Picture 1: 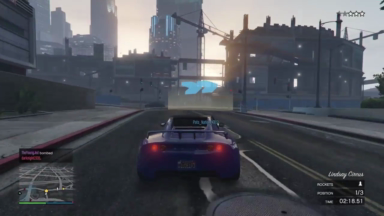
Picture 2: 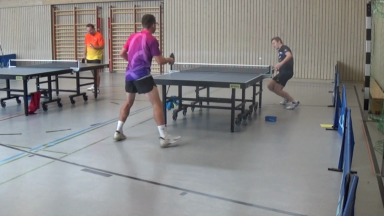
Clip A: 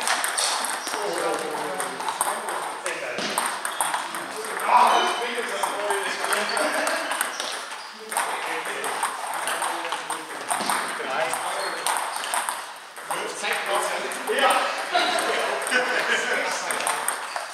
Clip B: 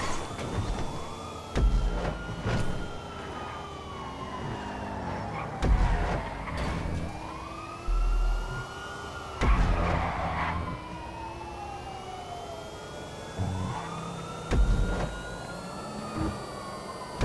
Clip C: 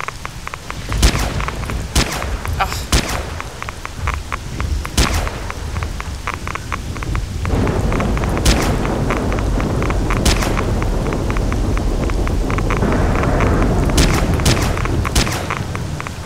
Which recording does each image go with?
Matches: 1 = B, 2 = A